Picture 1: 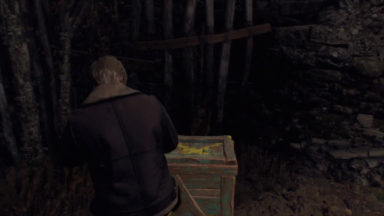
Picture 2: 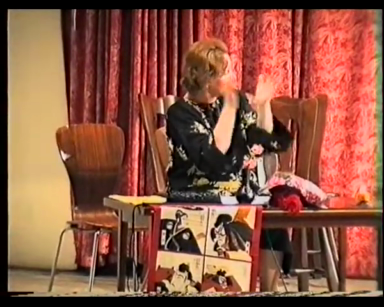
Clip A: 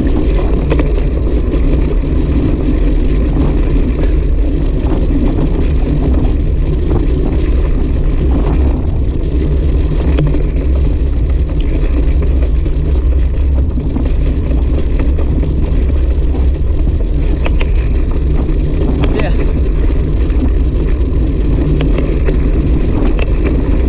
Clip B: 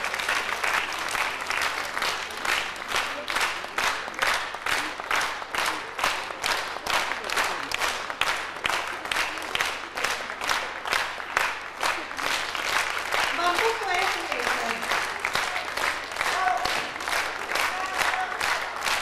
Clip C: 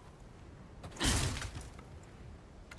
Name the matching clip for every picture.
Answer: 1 C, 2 B